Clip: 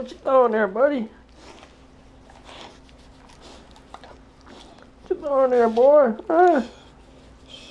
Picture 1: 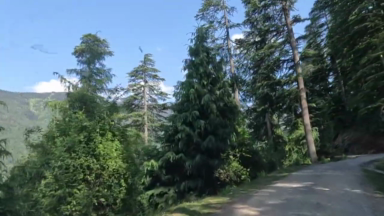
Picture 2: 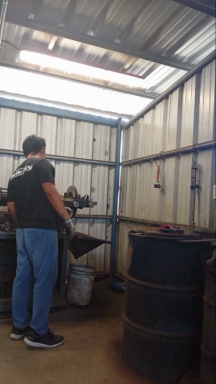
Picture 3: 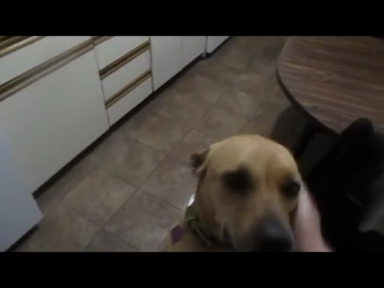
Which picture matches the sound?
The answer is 3